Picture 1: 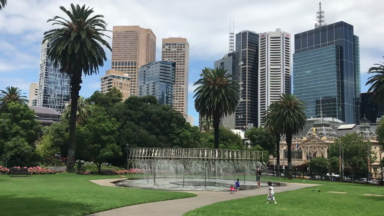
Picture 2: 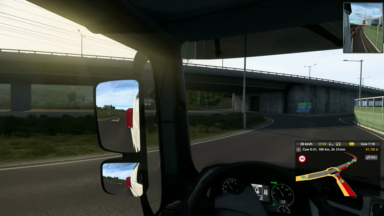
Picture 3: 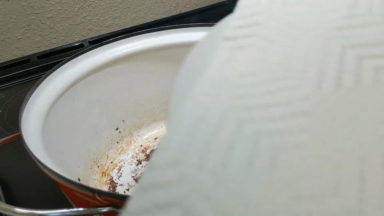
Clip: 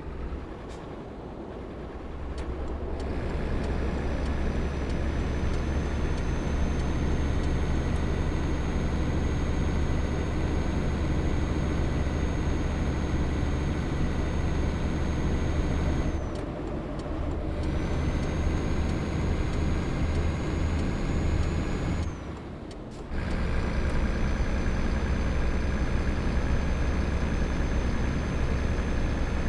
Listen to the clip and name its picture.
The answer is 2